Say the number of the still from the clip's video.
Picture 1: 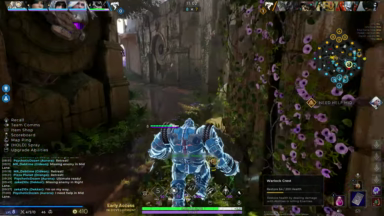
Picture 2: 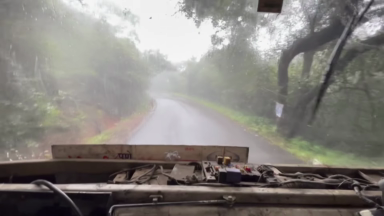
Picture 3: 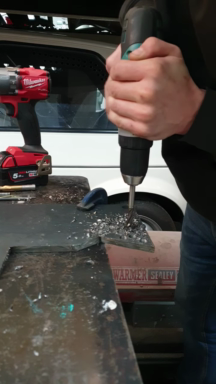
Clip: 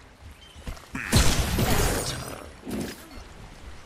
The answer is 1